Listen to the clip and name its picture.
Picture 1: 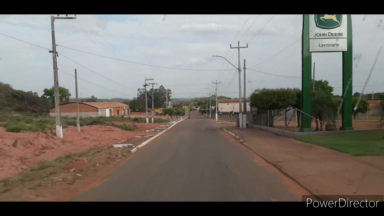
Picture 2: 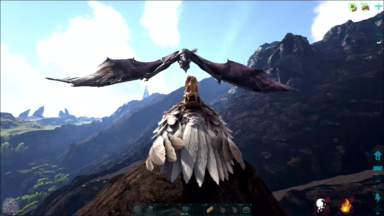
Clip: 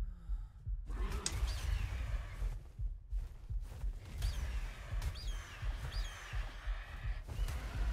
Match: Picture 2